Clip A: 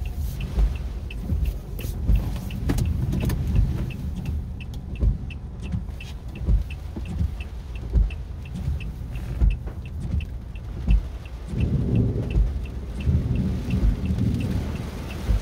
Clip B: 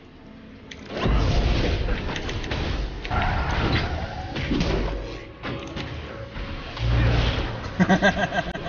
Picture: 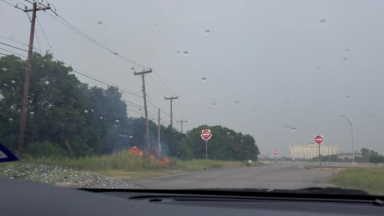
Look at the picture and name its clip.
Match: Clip A